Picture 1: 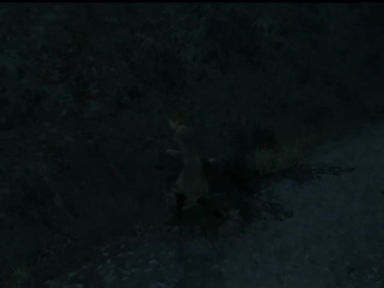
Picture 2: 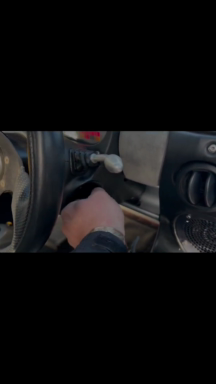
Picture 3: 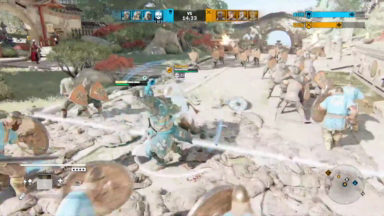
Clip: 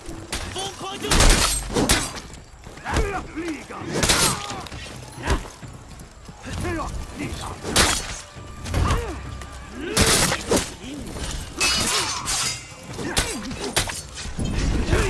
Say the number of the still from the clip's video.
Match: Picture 3